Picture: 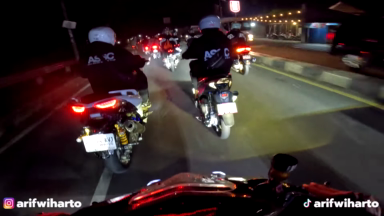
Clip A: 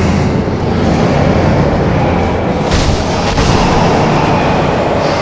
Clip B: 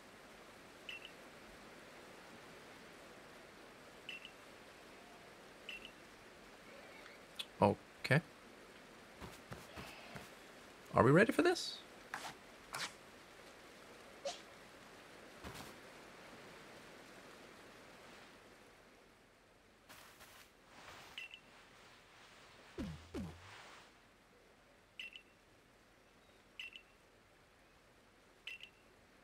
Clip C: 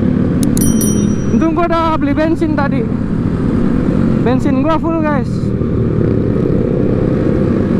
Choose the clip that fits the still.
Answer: C